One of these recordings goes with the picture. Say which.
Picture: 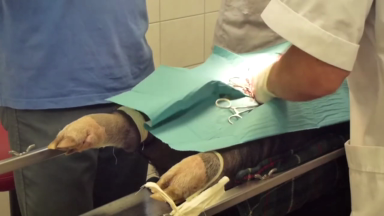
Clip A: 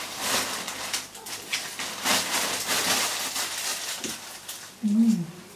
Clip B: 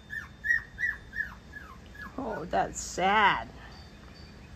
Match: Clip A